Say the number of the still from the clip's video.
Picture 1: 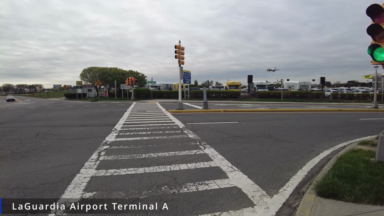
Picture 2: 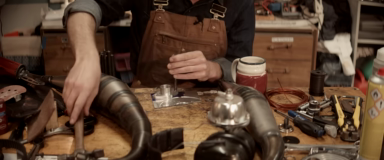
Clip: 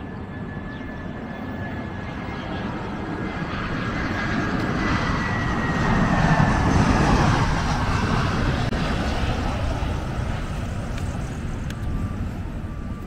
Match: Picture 1